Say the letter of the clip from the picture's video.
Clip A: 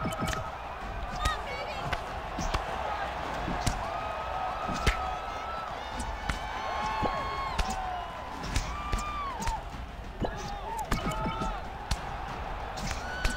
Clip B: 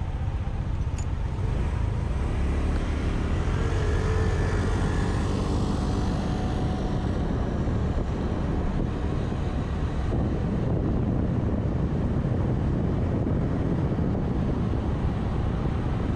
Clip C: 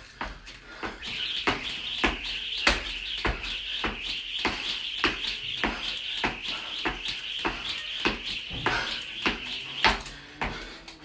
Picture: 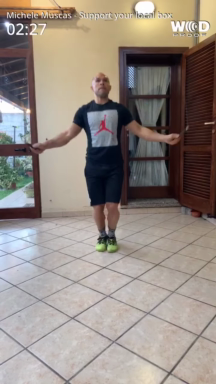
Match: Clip C